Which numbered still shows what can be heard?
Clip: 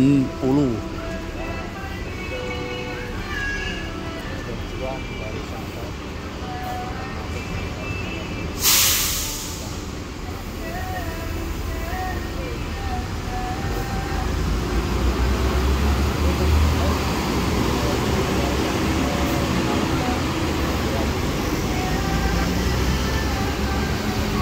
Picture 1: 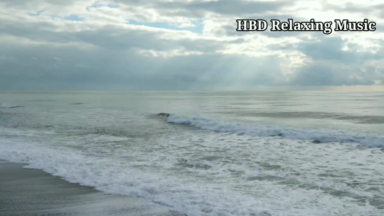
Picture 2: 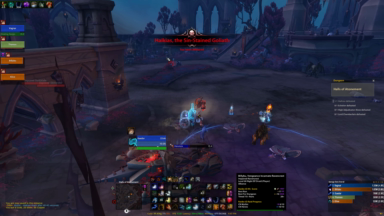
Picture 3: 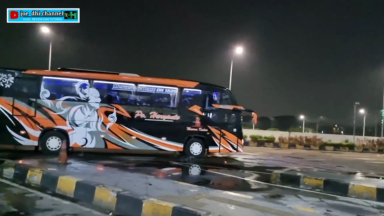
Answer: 3